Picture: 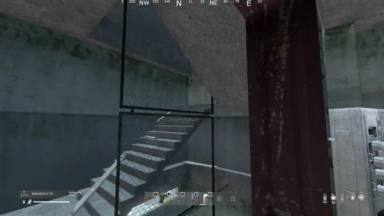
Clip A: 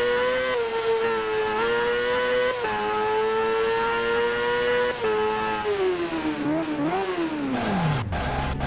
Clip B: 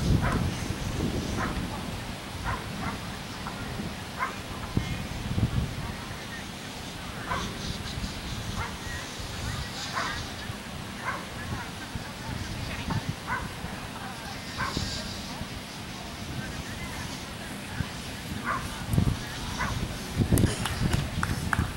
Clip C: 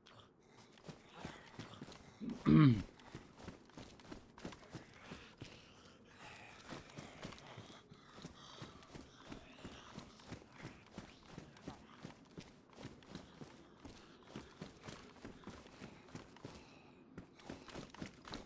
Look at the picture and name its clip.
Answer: C